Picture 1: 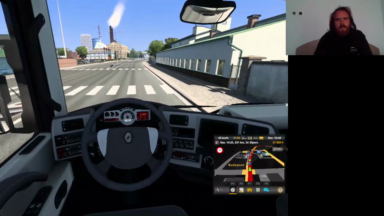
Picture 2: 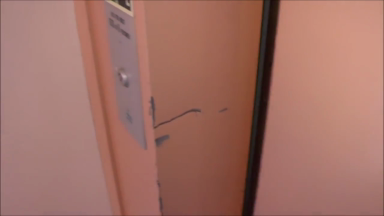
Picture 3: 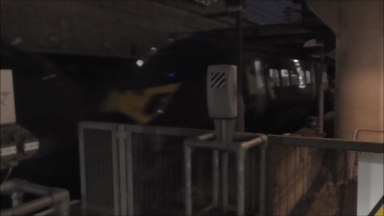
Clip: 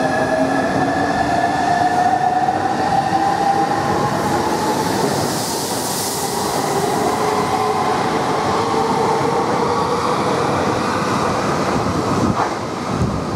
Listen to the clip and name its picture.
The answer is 3